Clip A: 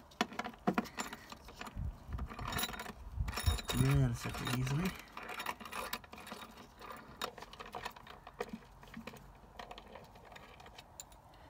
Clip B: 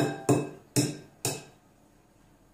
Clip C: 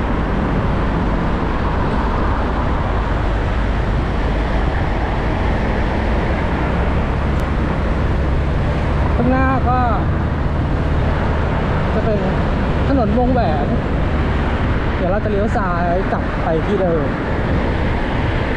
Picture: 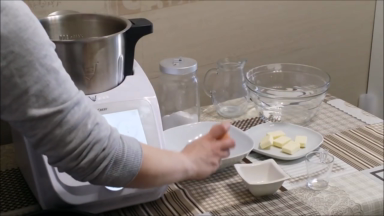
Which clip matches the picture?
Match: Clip B